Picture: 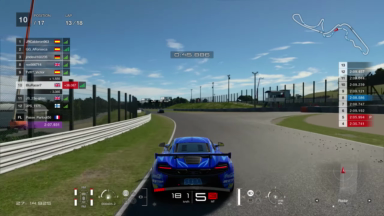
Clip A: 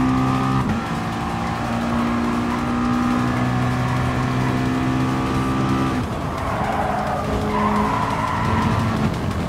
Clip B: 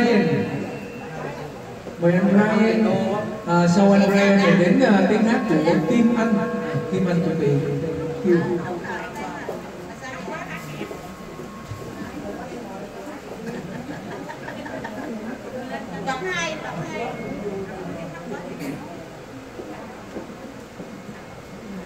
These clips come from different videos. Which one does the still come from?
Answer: A